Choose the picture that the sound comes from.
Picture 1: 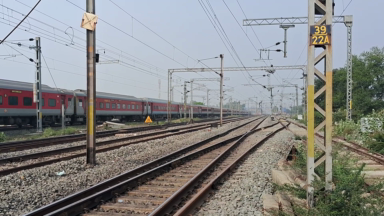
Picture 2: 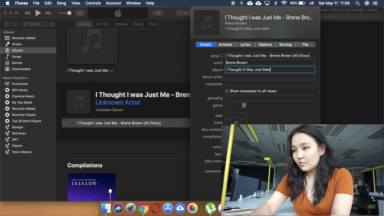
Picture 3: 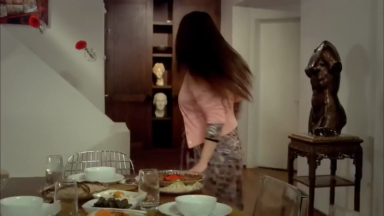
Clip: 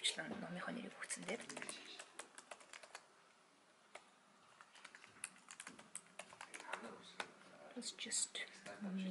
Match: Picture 2